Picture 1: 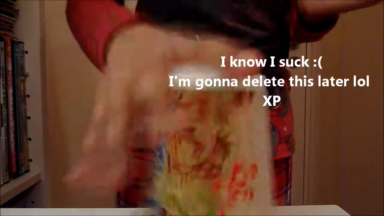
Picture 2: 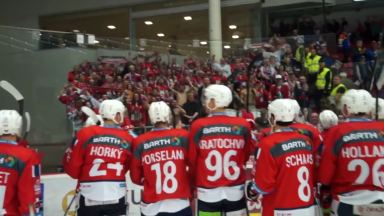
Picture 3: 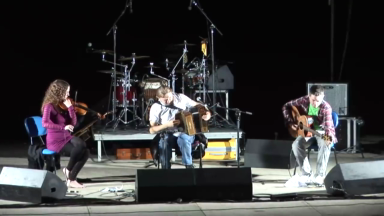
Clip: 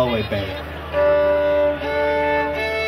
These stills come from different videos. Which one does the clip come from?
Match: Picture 3